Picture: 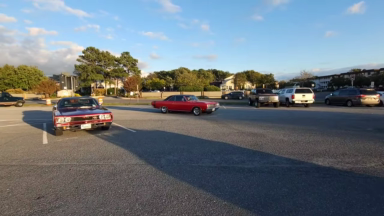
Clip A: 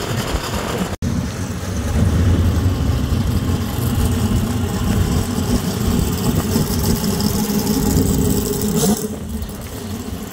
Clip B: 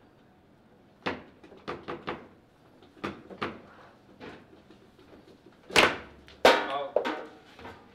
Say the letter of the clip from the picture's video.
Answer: A